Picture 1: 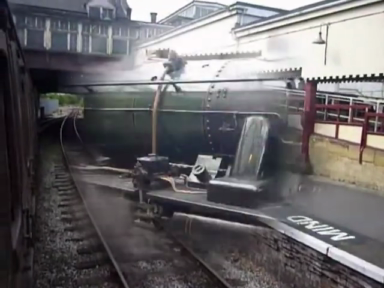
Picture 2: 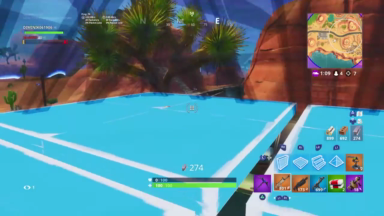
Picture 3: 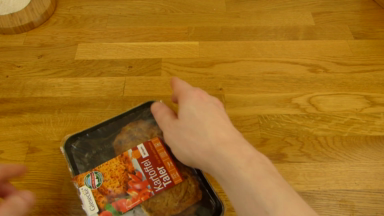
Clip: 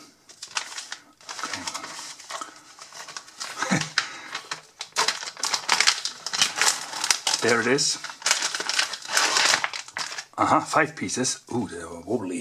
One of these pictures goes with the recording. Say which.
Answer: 3